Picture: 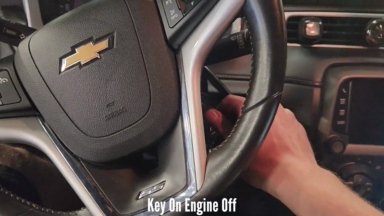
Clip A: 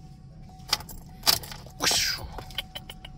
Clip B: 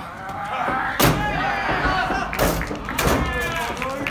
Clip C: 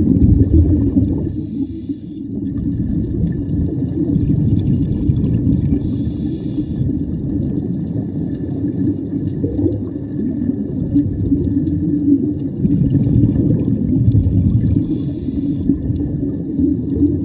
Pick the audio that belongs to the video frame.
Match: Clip A